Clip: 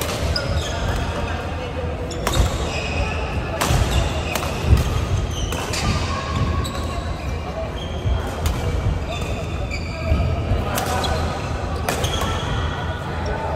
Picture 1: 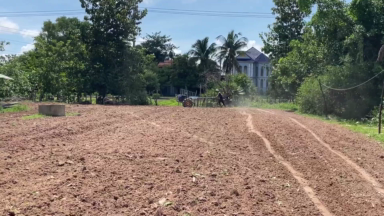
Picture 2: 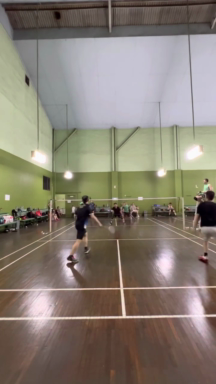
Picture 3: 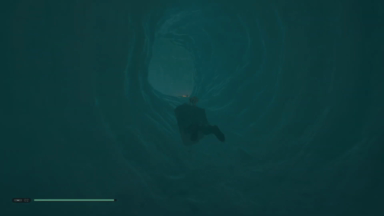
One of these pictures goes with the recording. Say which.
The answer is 2